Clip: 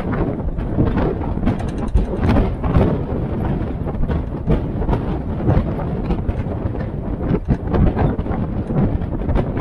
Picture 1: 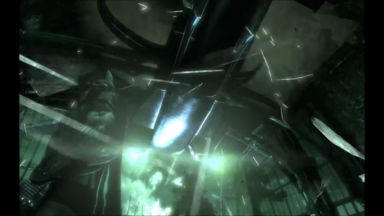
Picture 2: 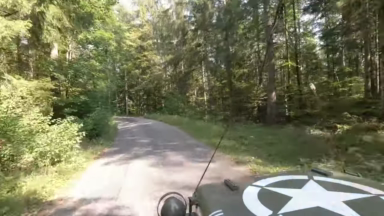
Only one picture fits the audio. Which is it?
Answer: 2